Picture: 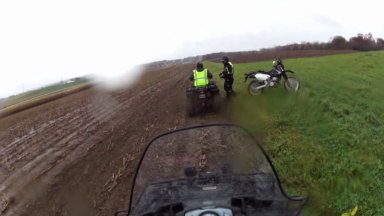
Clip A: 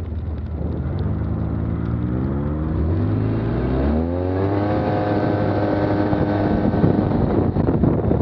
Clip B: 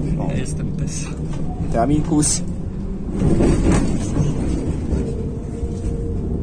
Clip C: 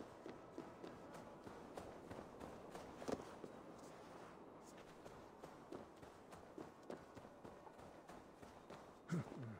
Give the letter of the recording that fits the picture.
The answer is A